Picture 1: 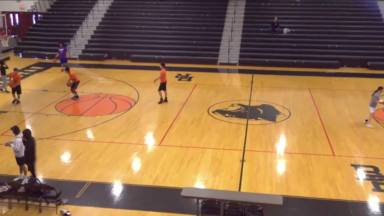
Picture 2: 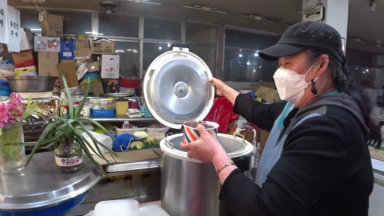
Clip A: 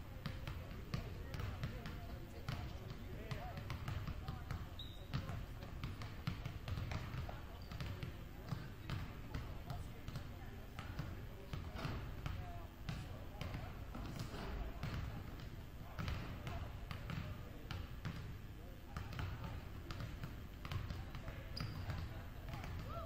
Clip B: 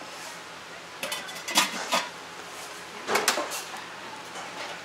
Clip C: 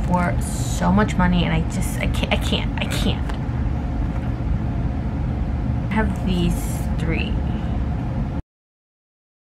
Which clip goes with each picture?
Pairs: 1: A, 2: B